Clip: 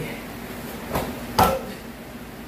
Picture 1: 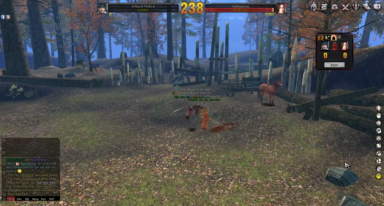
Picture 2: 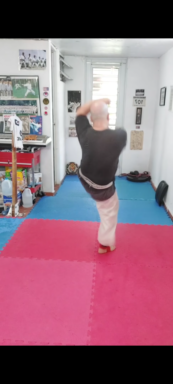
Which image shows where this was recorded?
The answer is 2